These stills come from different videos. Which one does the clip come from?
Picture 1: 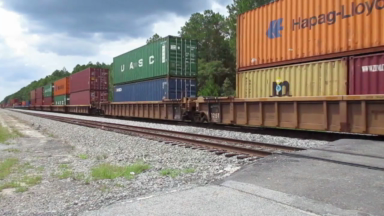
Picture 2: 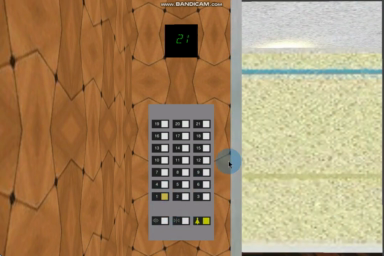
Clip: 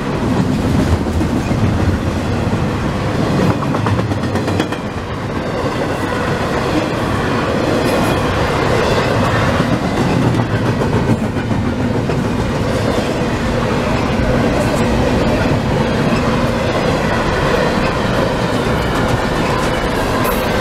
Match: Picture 1